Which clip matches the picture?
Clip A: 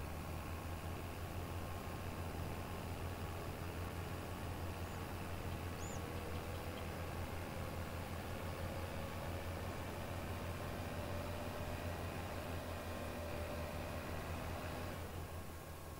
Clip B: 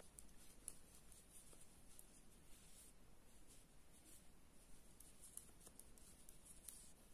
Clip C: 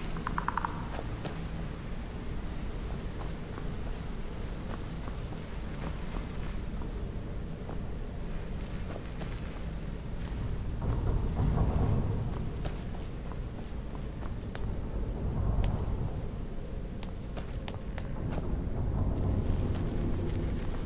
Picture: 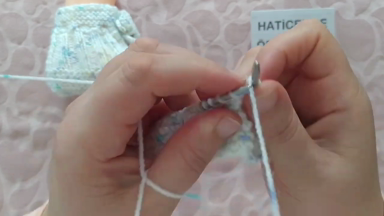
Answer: B